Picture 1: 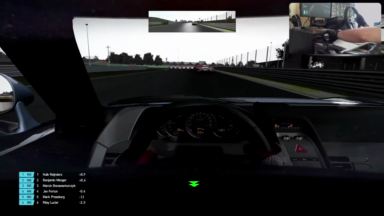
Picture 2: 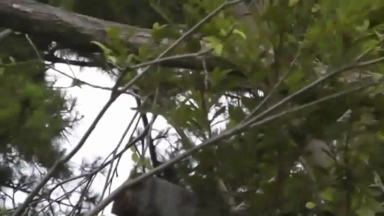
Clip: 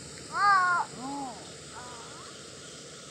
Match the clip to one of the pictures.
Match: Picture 2